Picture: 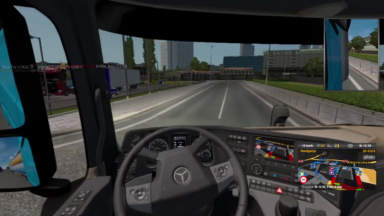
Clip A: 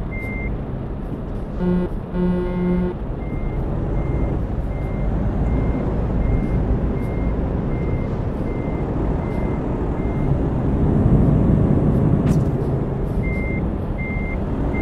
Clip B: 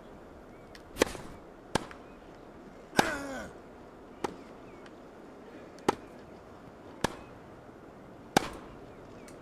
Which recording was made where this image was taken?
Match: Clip A